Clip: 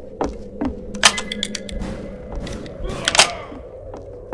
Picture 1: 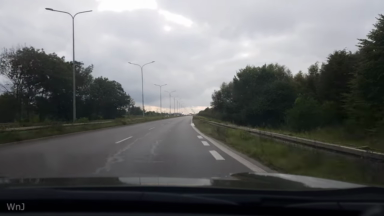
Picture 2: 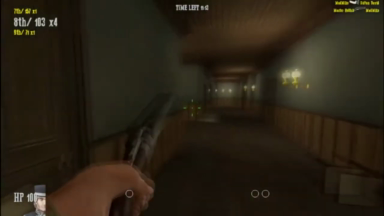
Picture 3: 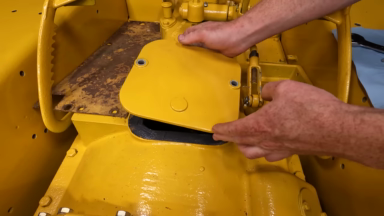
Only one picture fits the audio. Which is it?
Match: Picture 2